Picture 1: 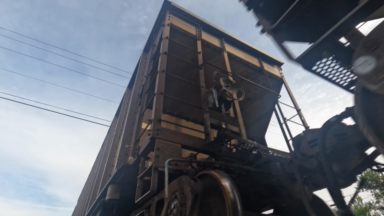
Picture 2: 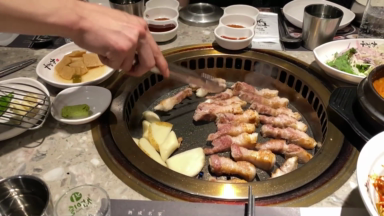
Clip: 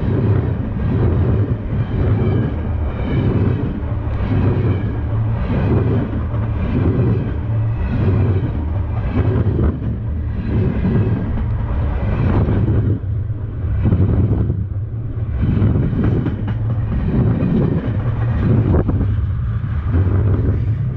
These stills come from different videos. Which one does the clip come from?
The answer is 1